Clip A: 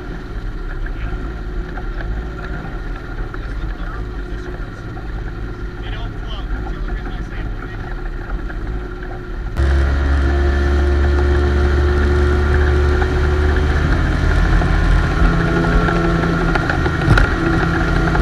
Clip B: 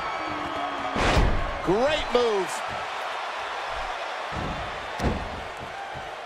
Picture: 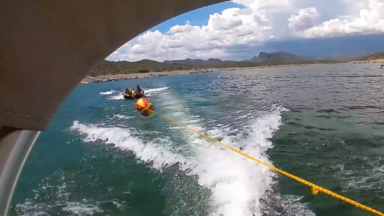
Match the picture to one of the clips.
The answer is A